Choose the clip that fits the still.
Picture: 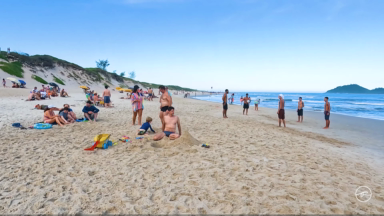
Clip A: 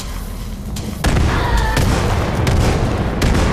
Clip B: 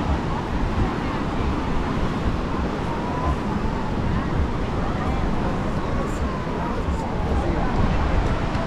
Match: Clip B